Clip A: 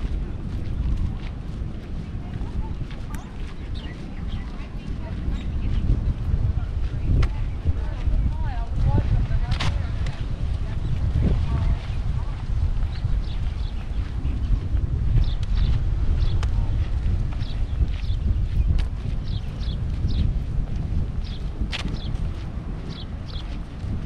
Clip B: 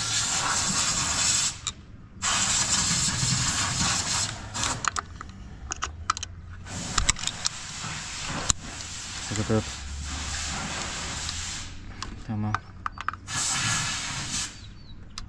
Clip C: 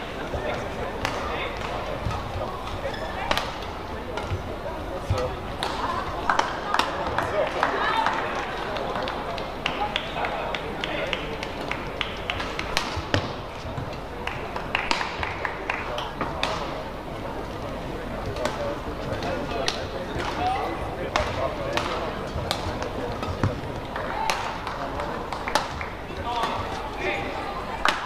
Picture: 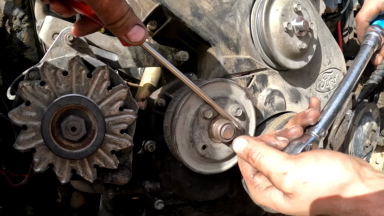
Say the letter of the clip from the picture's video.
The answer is B